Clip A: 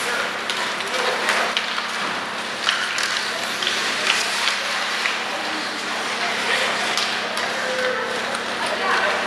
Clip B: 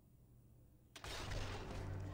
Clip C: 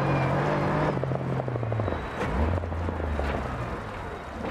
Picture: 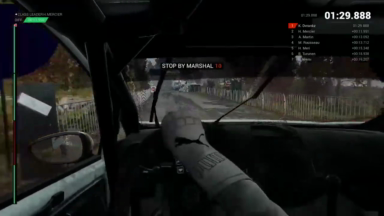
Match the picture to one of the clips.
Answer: C